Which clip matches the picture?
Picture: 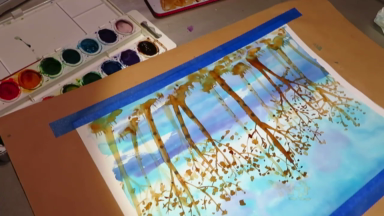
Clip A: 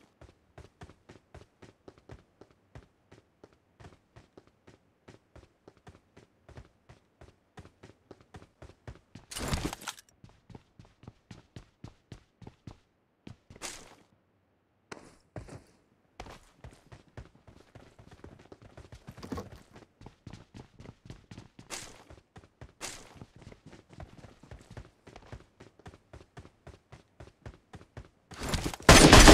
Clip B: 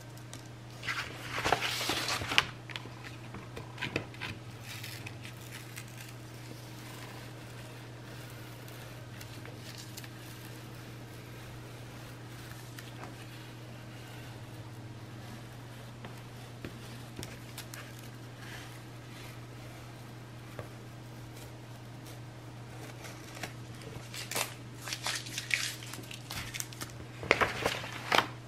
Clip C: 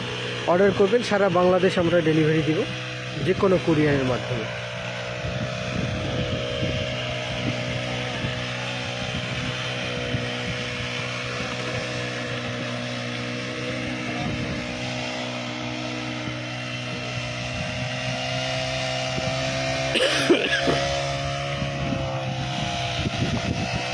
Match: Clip B